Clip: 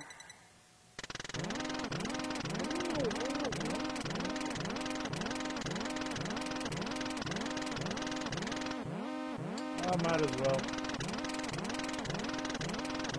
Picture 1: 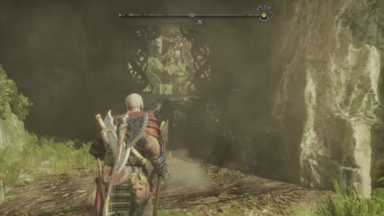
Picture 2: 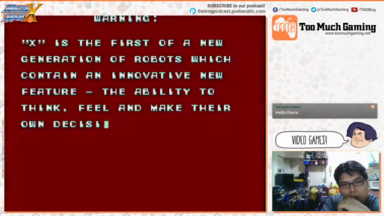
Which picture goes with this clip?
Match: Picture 2